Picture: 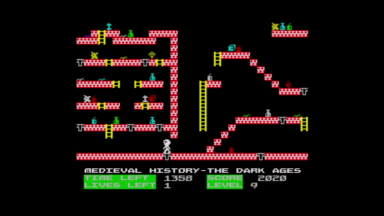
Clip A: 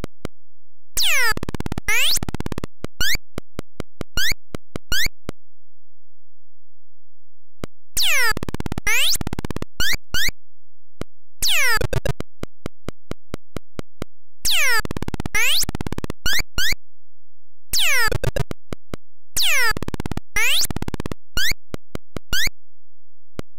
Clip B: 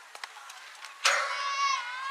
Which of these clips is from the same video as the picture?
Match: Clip A